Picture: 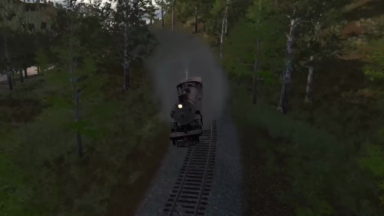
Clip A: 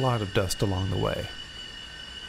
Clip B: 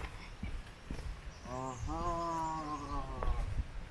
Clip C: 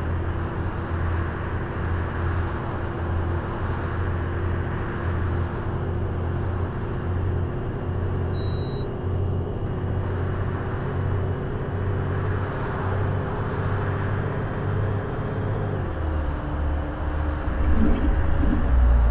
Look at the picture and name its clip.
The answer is A